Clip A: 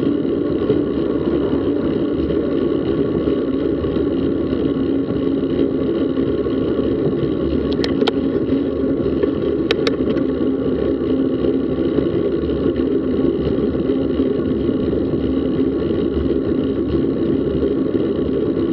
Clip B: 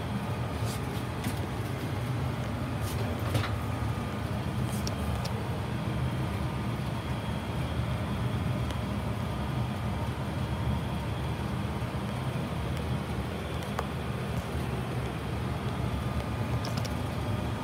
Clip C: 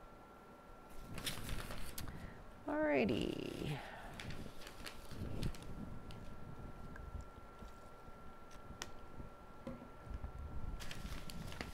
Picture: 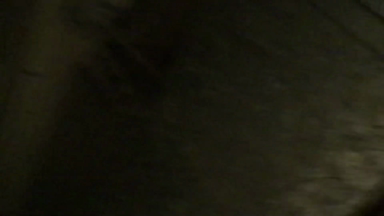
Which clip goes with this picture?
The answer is B